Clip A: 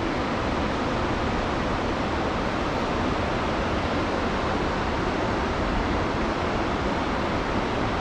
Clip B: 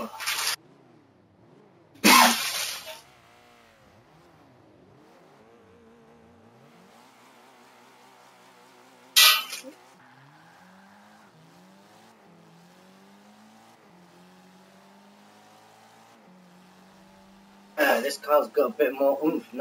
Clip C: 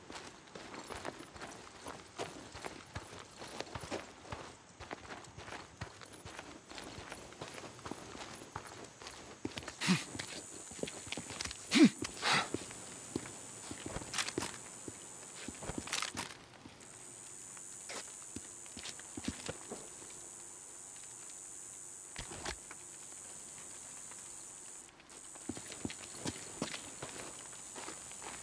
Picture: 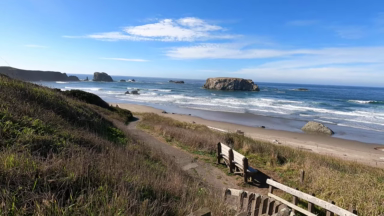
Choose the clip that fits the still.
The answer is A